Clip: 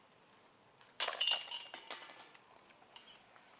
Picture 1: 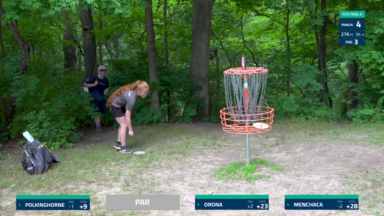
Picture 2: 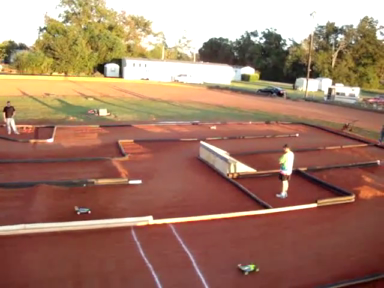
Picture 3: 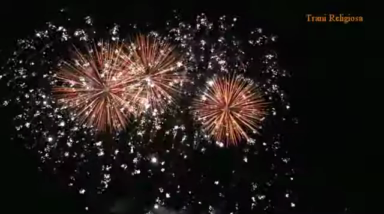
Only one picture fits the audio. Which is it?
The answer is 1